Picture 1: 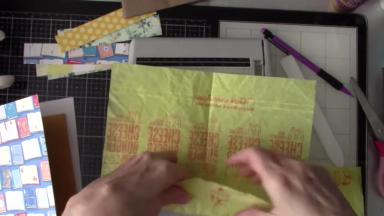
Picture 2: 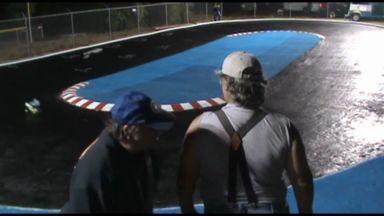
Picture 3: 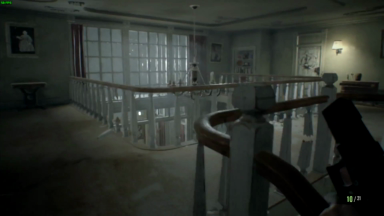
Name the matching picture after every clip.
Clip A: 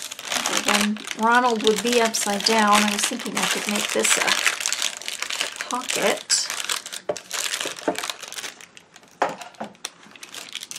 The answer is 1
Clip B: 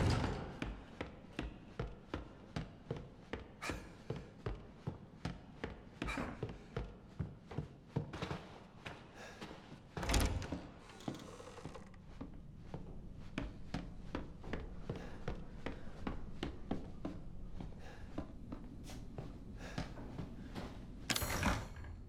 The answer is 3